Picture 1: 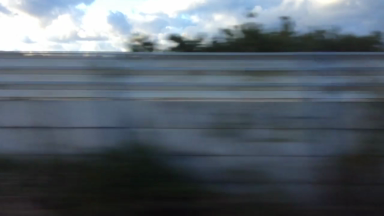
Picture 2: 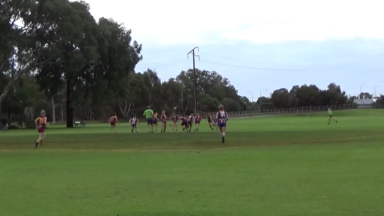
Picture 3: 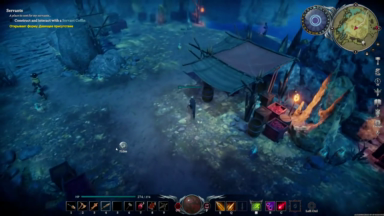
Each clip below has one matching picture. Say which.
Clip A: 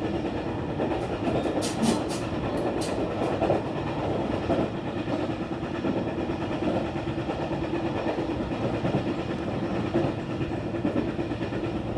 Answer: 1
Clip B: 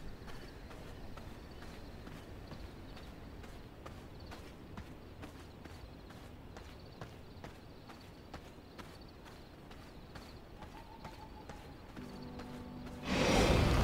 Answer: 3